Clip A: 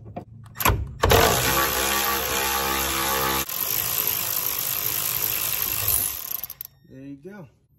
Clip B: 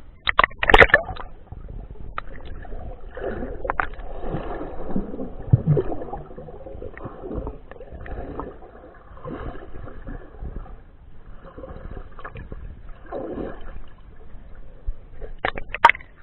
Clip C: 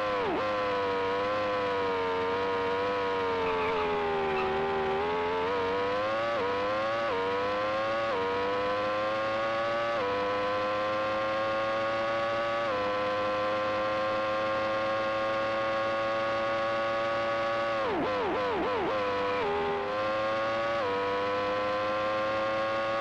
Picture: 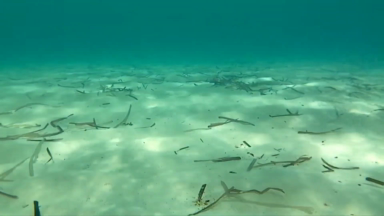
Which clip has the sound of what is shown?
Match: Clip B